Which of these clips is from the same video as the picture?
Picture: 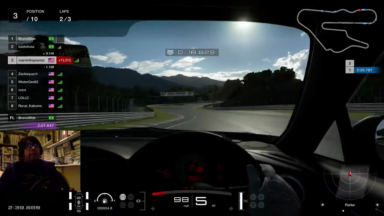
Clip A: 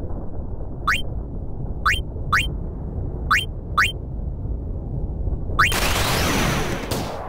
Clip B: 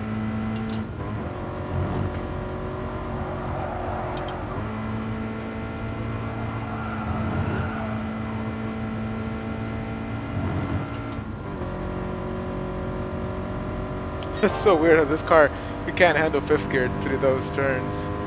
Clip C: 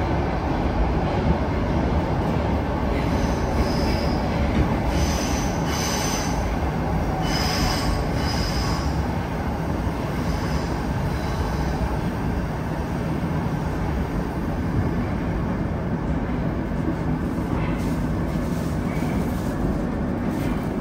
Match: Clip B